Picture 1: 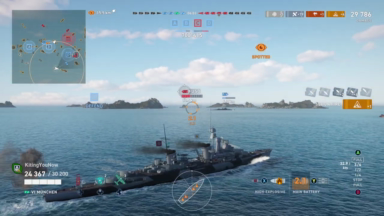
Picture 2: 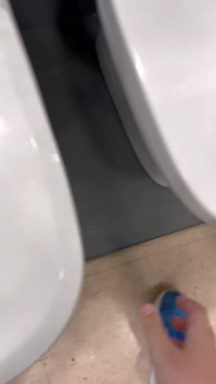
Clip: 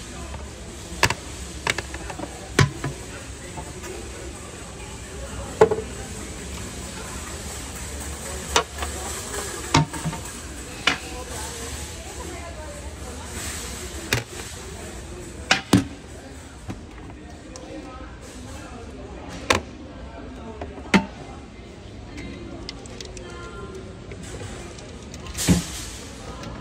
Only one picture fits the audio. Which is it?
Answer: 2